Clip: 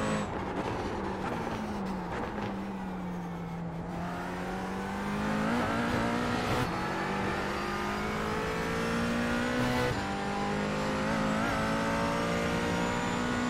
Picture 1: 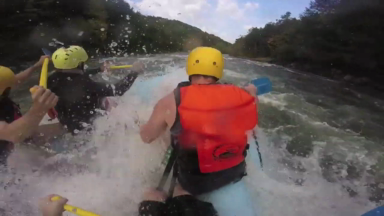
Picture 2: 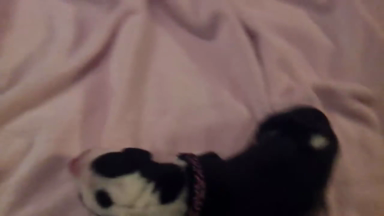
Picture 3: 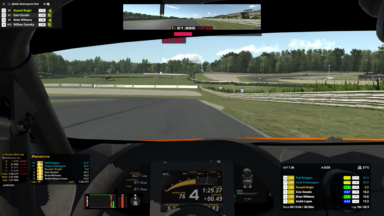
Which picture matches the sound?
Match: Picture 3